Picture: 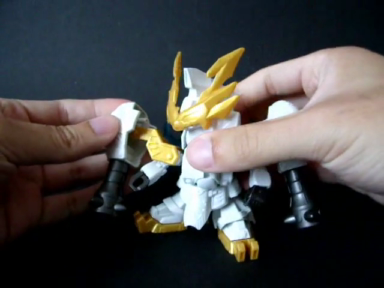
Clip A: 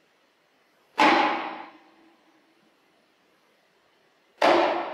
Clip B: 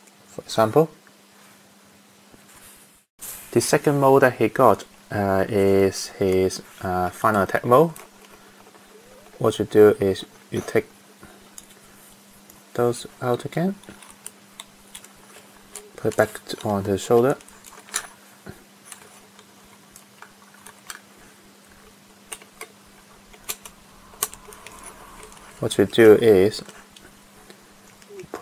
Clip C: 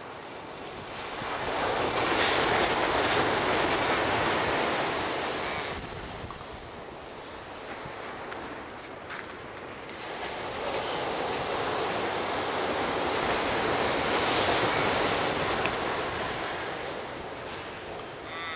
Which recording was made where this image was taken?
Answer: B